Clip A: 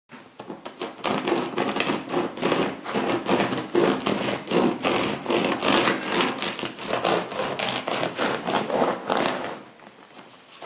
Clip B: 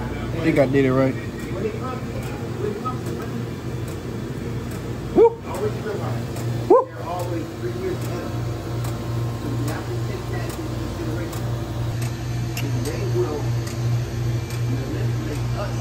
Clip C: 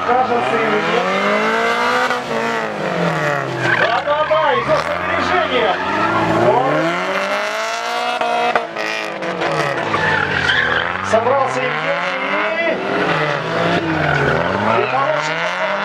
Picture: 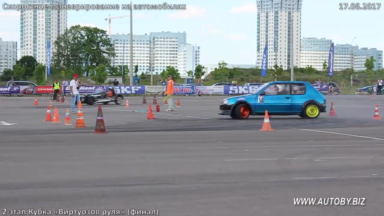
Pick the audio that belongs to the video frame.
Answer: C